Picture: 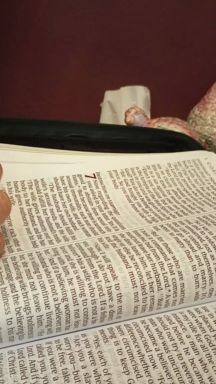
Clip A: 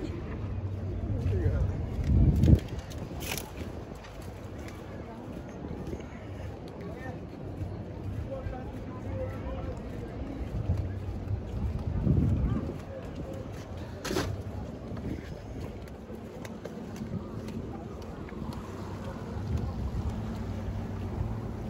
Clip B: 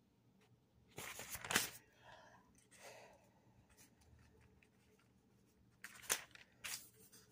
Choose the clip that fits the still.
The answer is B